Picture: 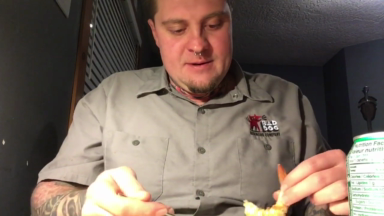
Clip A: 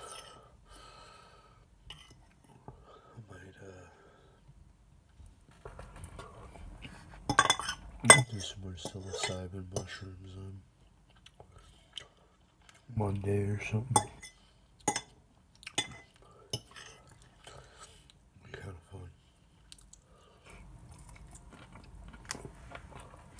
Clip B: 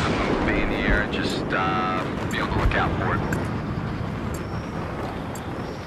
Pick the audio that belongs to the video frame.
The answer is A